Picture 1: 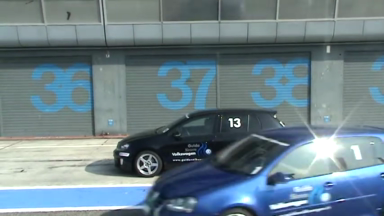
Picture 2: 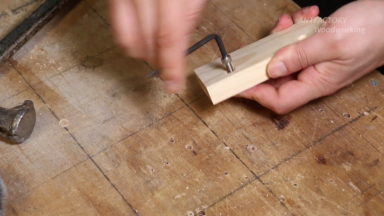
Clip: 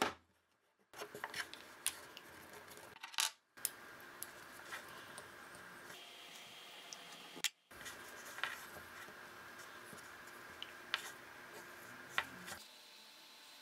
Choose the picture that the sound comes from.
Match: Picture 2